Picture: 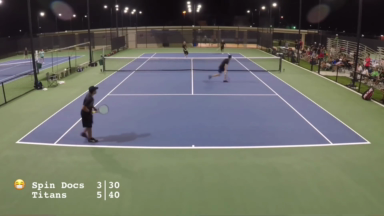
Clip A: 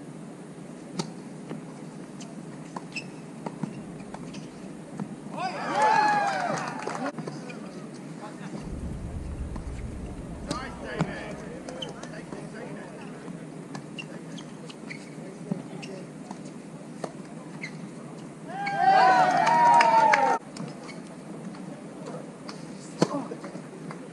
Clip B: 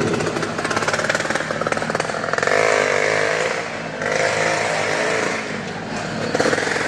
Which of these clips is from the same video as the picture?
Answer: A